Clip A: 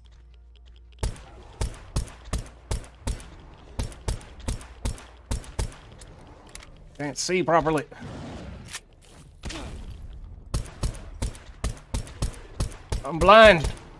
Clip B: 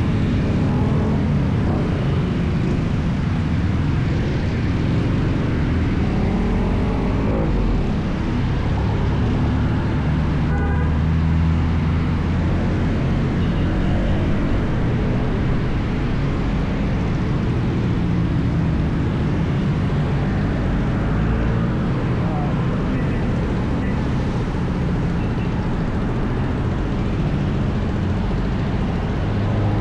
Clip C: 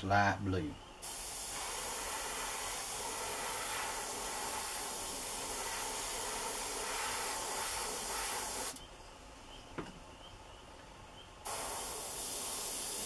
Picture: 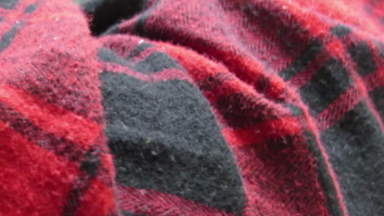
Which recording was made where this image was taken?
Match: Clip C